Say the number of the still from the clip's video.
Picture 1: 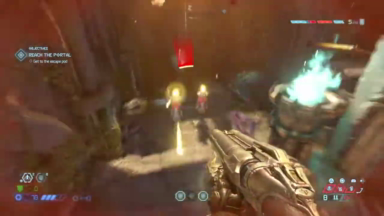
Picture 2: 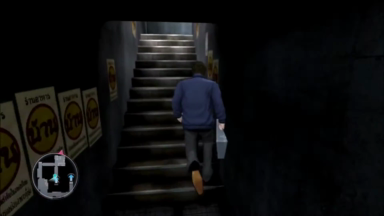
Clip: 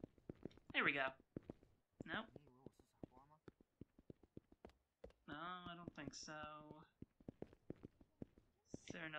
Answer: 2